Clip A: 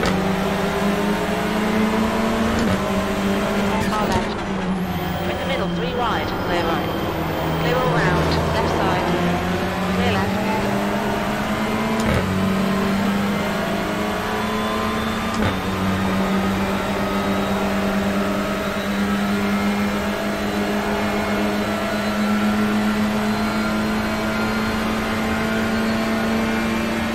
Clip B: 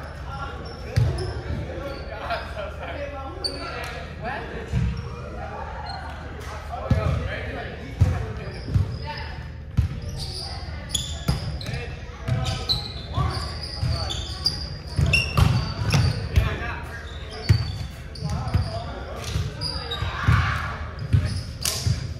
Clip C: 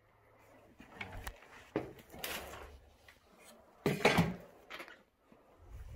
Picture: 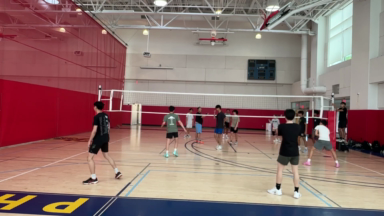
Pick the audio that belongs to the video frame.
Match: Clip B